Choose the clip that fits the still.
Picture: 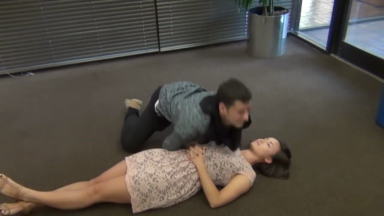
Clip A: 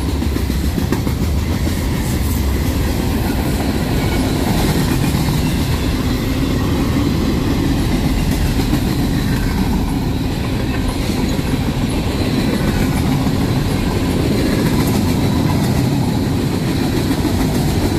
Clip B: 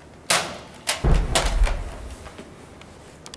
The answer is B